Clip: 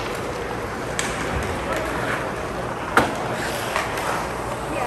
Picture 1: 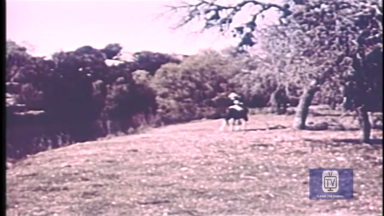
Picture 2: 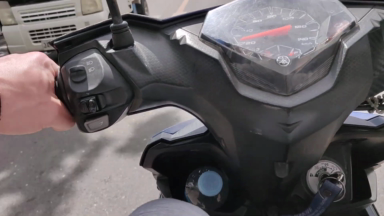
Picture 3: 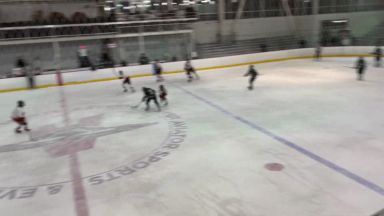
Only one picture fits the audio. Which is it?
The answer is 3